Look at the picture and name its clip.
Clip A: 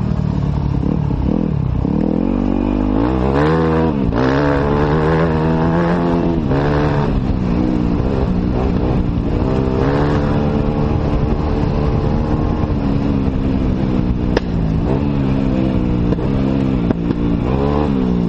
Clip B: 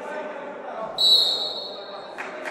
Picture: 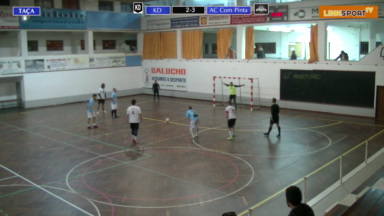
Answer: B